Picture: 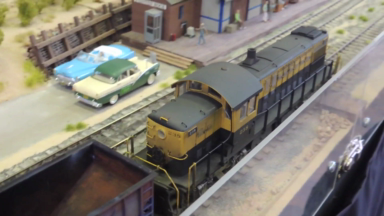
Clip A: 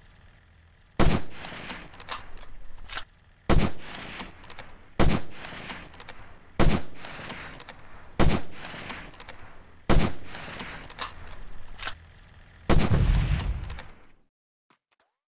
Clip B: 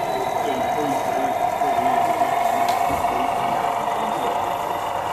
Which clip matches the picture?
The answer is B